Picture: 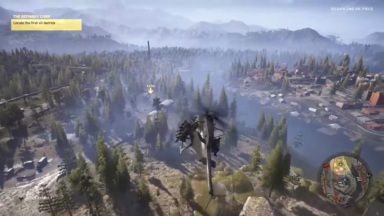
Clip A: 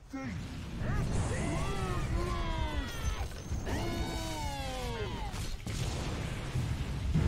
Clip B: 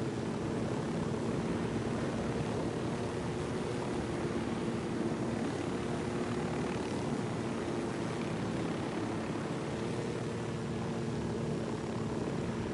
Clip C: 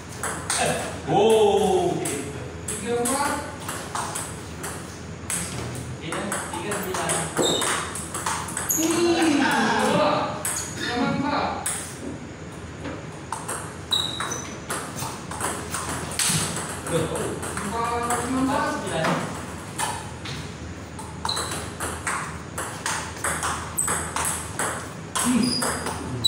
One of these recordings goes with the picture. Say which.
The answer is B